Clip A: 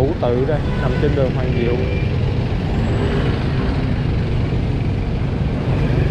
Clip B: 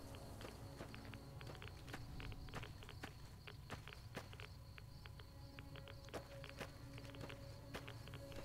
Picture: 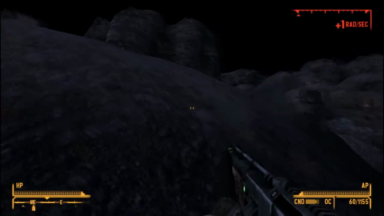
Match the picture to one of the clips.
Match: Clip B